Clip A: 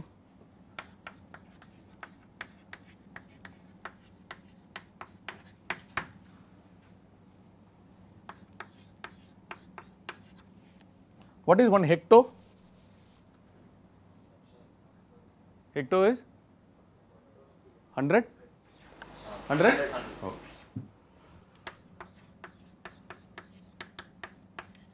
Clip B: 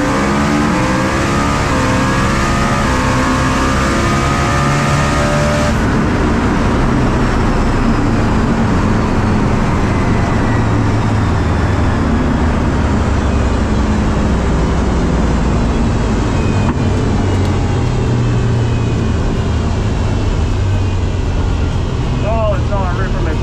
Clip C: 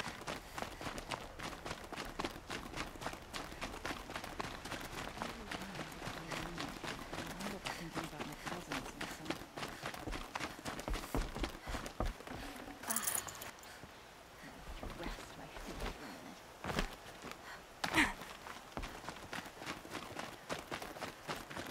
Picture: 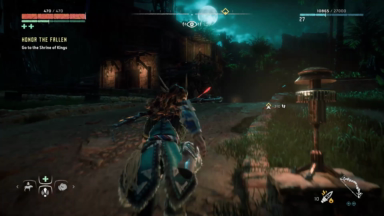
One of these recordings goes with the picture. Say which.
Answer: C